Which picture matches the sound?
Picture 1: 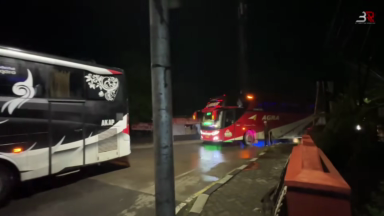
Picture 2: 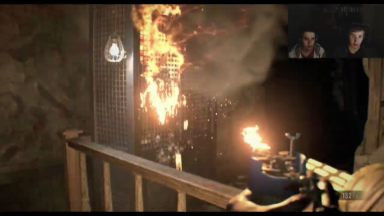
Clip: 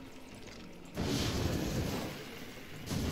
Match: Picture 2